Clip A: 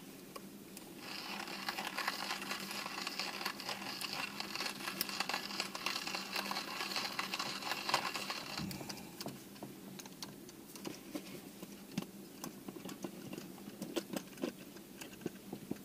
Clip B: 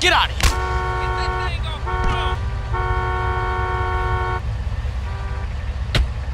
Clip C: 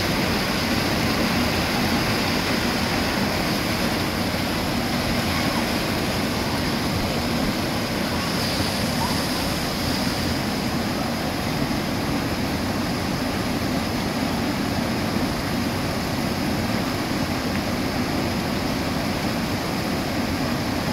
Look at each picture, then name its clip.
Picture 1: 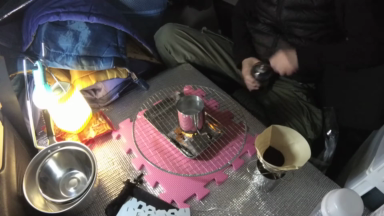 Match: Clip A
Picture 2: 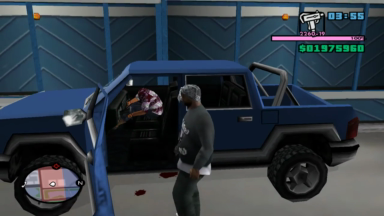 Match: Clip B